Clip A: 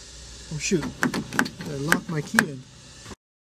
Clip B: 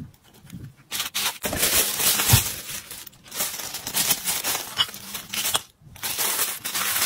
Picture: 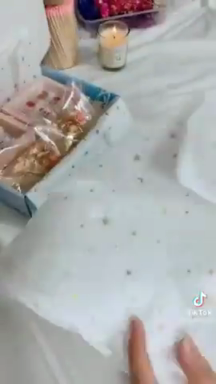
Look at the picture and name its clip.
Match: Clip B